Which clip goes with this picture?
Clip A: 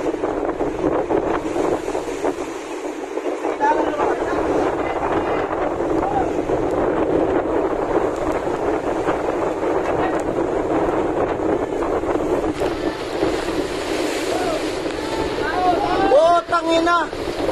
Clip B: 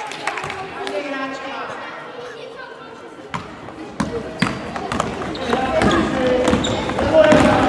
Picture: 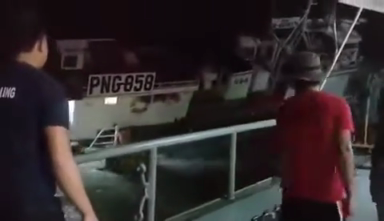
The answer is A